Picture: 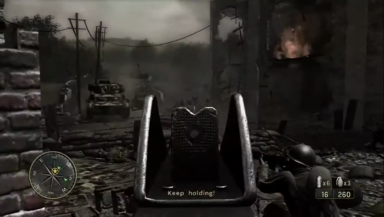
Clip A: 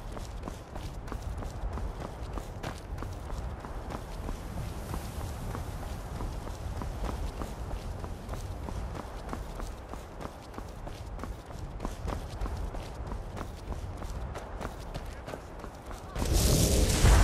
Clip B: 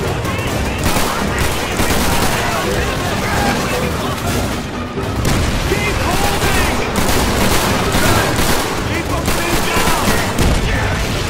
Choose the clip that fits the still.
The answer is B